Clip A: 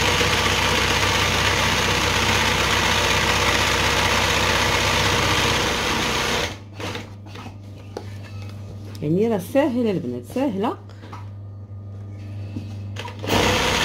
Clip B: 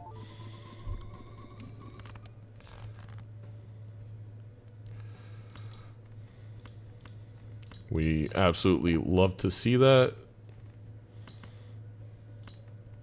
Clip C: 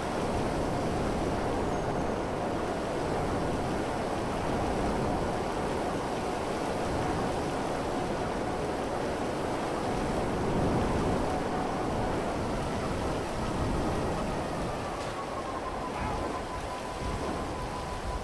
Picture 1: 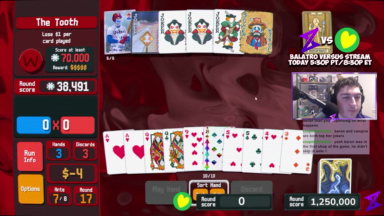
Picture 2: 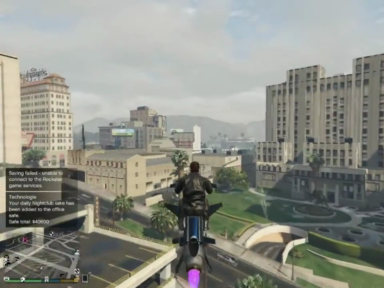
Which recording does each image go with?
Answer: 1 B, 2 C